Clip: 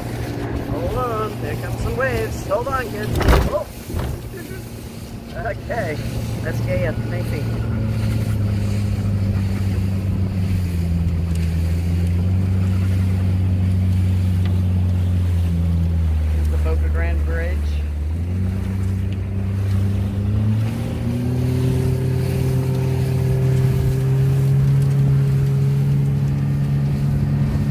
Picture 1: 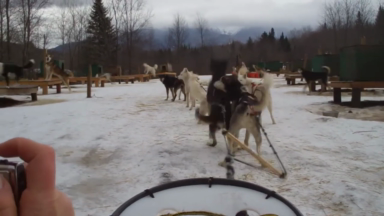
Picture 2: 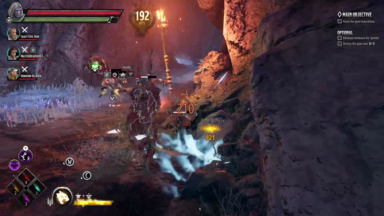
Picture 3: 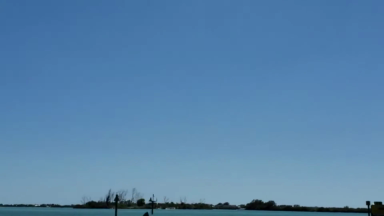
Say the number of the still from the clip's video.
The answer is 3